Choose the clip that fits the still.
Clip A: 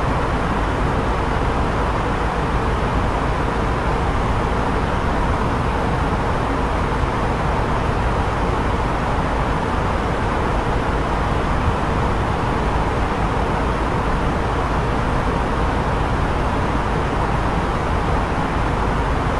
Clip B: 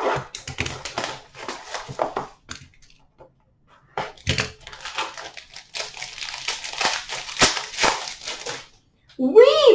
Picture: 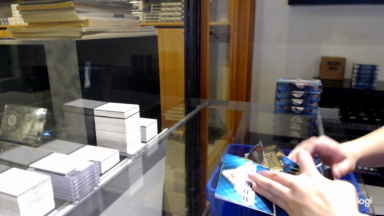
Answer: B